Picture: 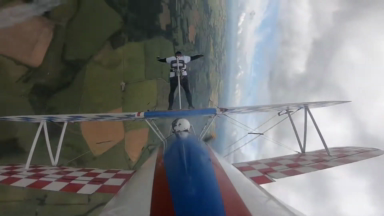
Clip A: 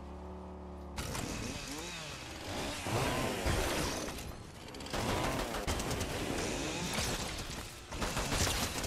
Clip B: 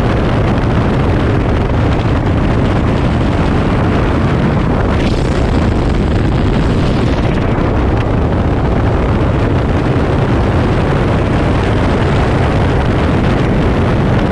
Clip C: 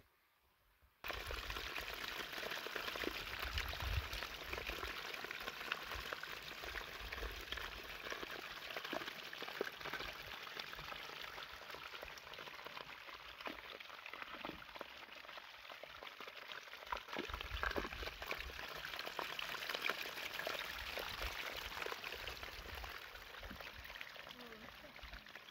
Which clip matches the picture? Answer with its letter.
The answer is B